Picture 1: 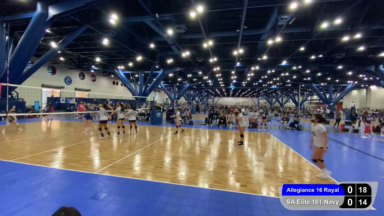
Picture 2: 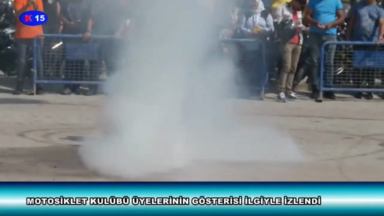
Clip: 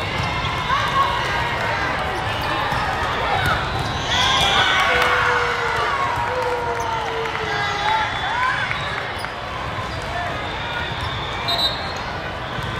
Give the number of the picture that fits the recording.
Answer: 1